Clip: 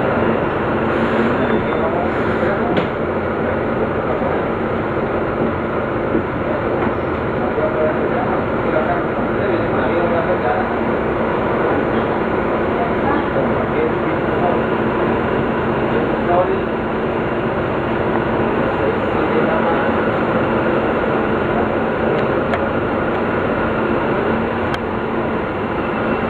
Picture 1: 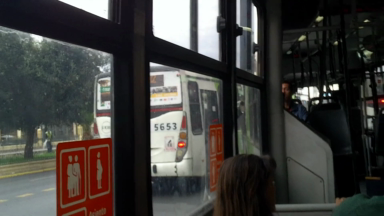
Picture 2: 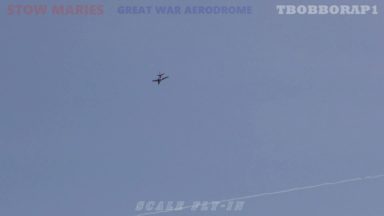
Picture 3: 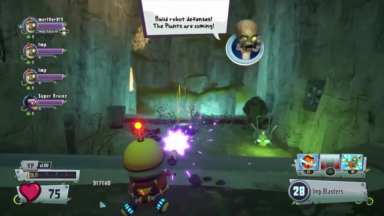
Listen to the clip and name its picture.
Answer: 1